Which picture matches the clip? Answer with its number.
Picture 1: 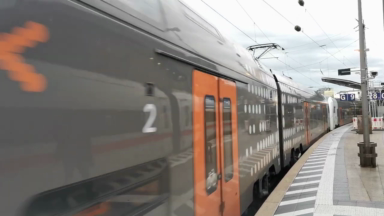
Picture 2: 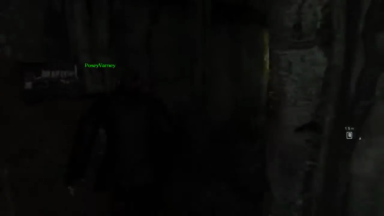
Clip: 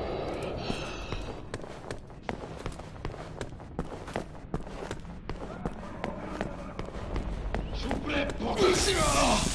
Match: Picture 2